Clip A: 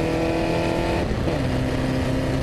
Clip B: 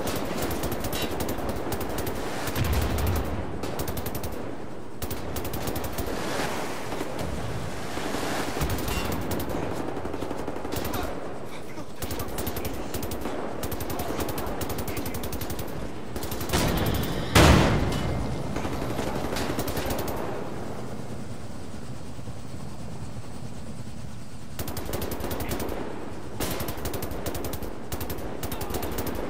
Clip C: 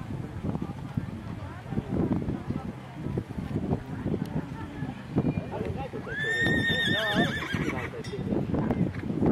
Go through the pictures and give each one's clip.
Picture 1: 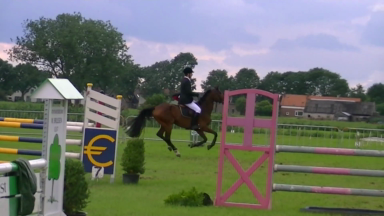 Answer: C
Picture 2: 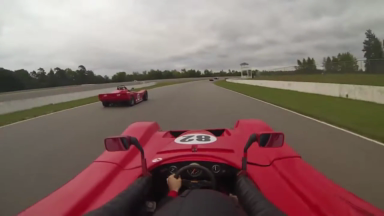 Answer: A